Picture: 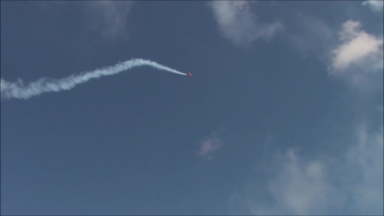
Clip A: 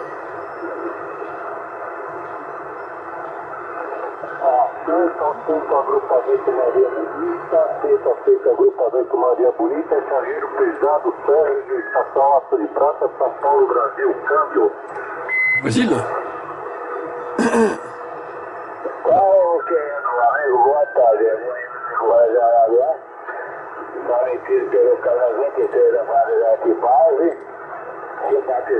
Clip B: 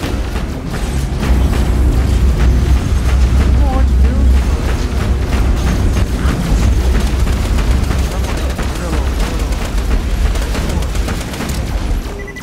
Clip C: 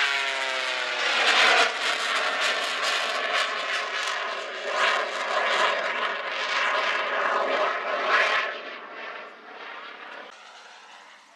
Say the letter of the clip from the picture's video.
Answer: C